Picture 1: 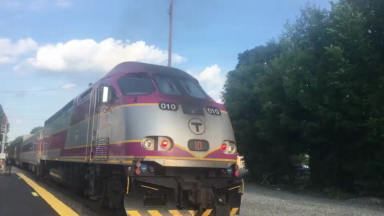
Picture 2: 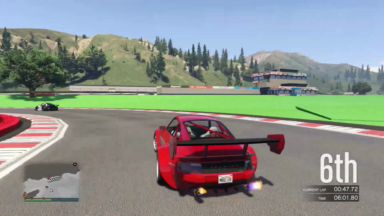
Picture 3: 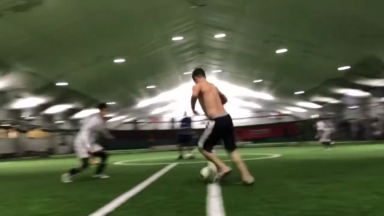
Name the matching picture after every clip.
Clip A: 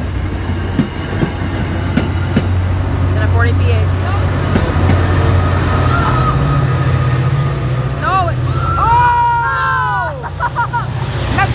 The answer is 1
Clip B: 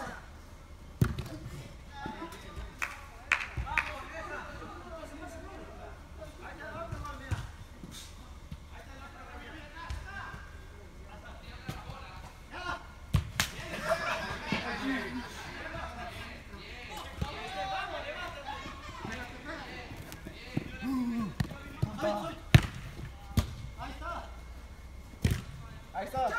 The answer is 3